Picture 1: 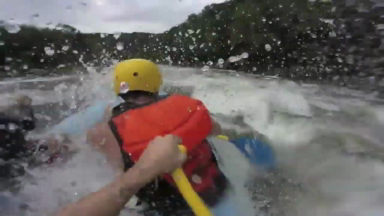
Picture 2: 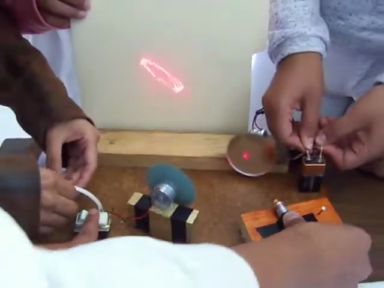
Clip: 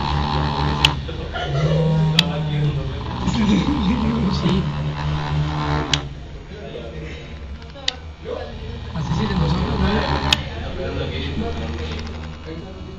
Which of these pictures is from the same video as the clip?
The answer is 2